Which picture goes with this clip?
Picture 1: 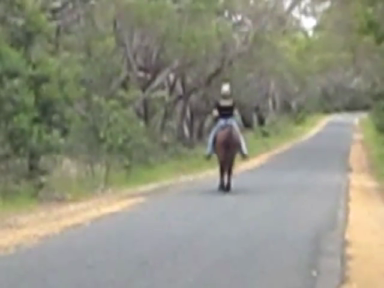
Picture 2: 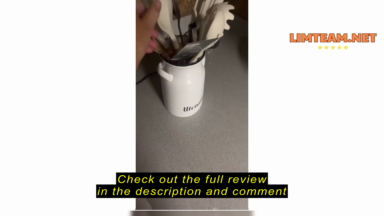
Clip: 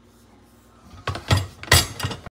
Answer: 2